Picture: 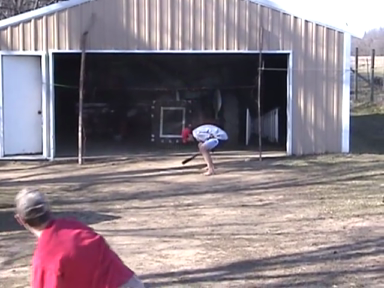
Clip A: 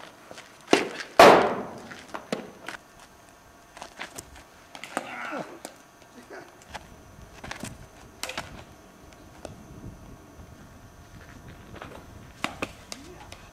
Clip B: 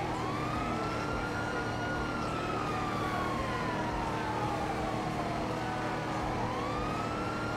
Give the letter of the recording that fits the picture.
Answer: A